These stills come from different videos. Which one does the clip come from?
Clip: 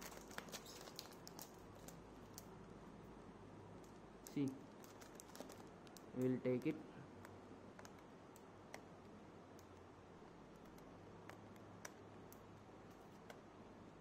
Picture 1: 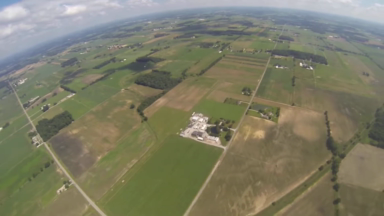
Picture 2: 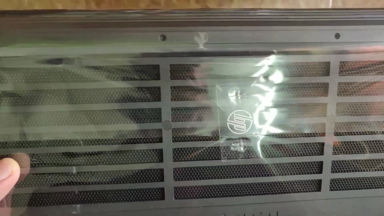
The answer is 2